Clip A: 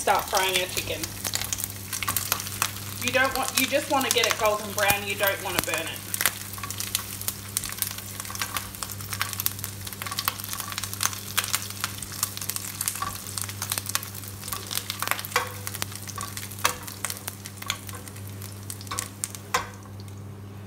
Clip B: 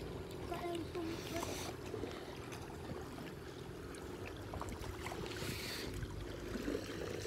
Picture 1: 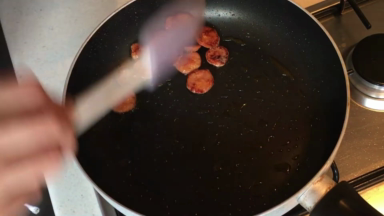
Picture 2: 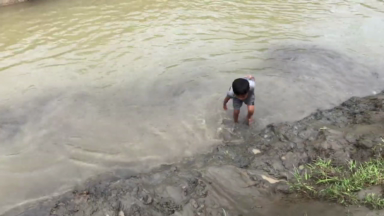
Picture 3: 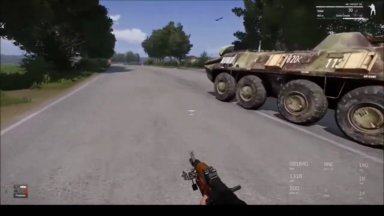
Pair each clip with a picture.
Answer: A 1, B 2